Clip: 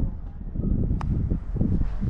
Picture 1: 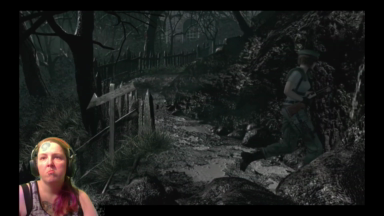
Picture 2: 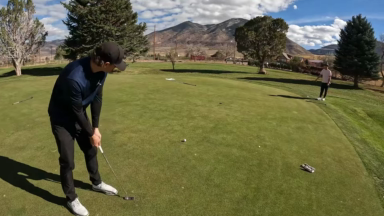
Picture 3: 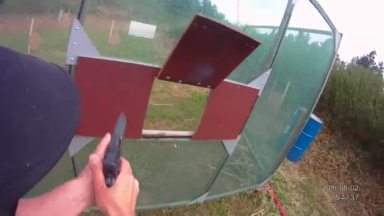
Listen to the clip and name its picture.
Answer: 2